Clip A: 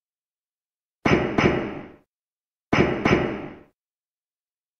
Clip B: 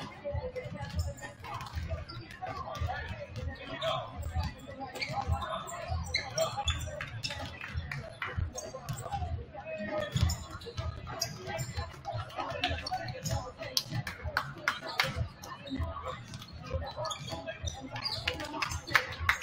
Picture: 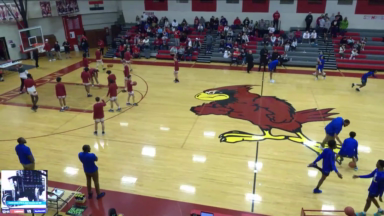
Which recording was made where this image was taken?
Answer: B